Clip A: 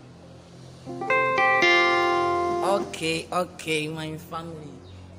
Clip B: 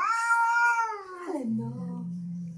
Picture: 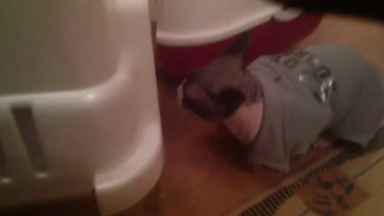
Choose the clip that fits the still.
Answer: B